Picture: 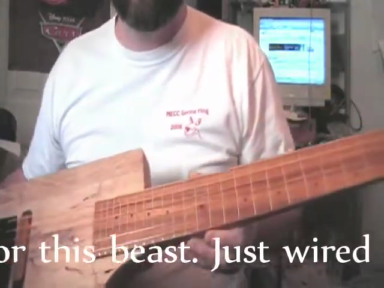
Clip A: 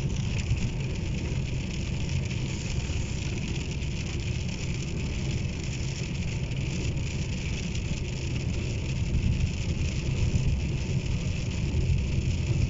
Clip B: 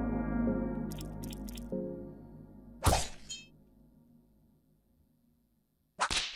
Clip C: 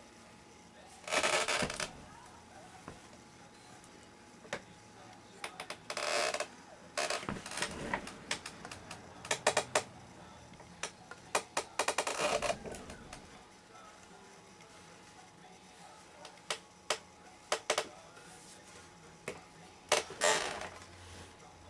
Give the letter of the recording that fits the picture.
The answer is C